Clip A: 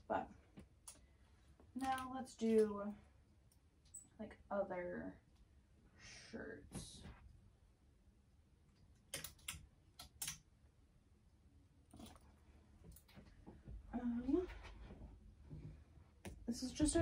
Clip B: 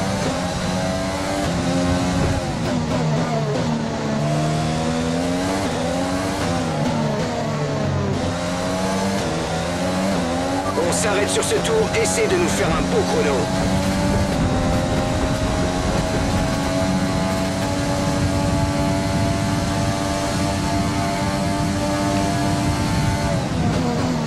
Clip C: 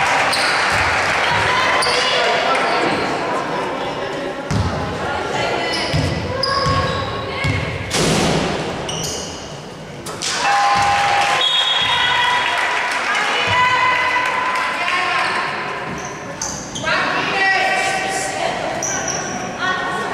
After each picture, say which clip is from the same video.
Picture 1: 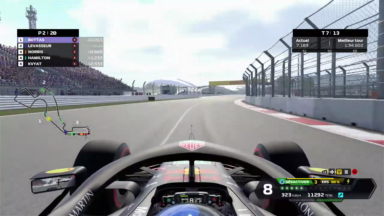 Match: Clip B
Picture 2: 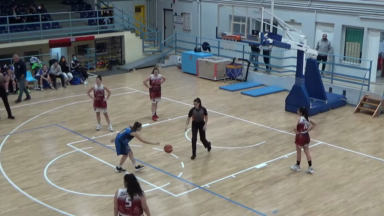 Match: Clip C